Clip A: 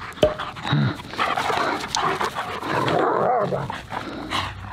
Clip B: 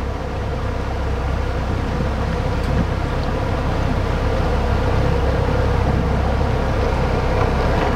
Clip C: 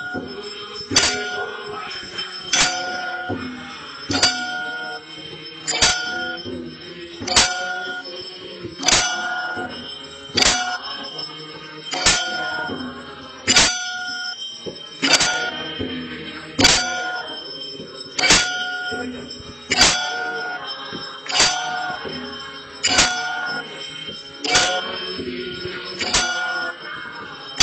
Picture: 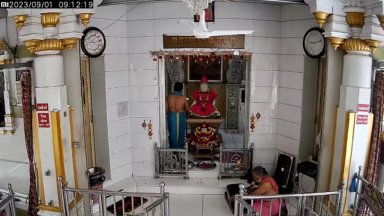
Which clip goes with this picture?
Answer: C